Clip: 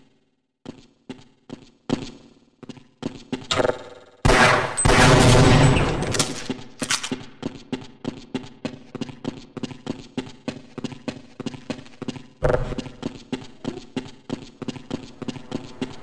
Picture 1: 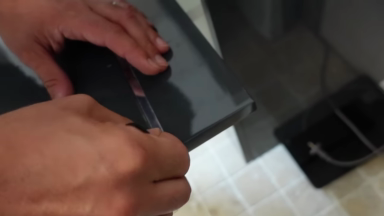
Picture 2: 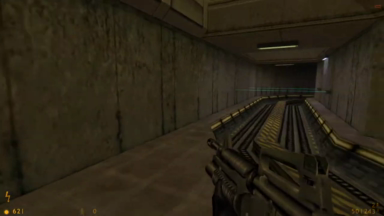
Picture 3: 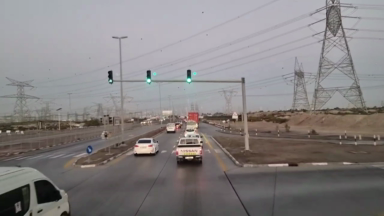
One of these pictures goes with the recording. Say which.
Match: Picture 2